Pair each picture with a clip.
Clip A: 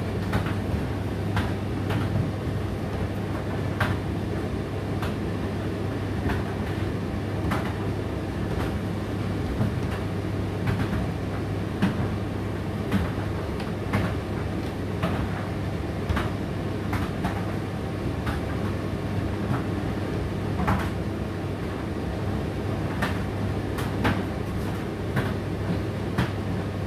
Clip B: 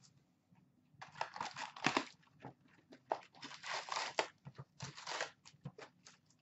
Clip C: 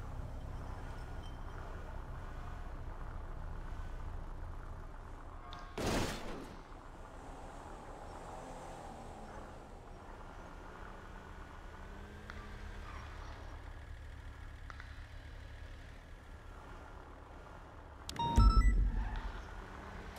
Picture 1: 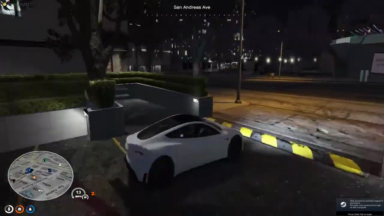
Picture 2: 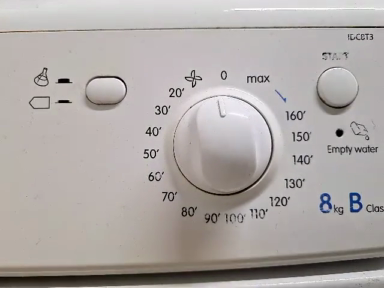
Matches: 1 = C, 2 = A